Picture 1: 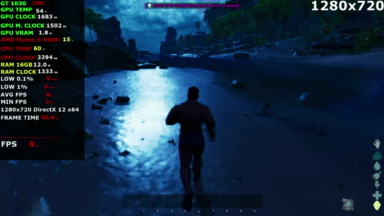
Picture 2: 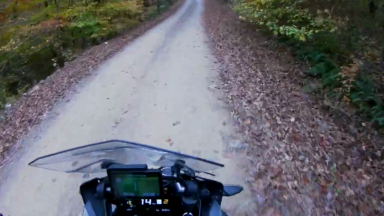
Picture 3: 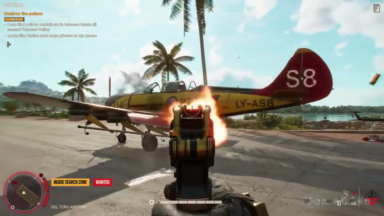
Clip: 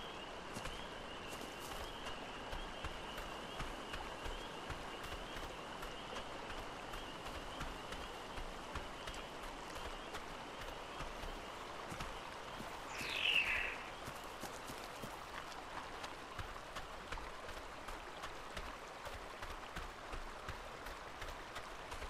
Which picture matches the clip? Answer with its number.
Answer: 1